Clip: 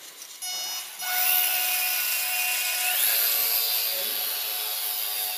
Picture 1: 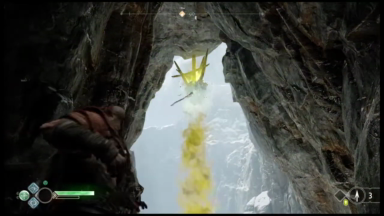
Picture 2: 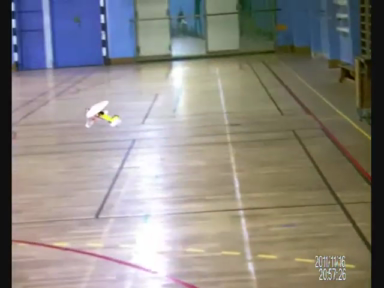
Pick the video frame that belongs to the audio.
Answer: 2